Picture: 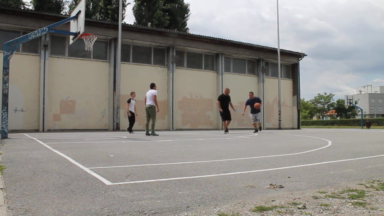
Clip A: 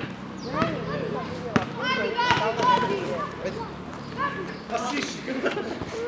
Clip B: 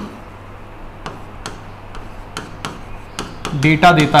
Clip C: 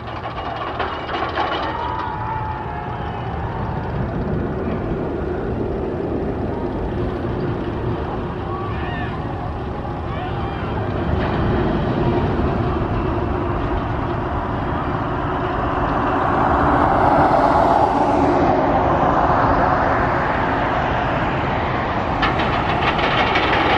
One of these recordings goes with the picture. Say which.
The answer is A